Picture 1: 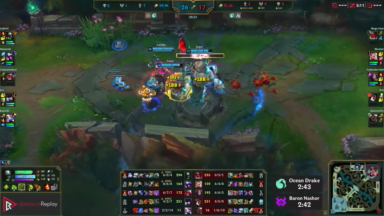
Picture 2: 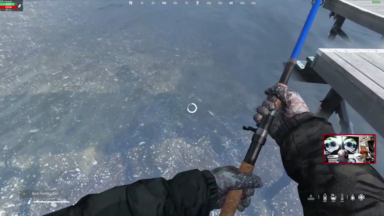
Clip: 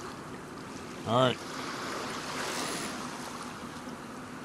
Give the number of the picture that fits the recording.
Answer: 2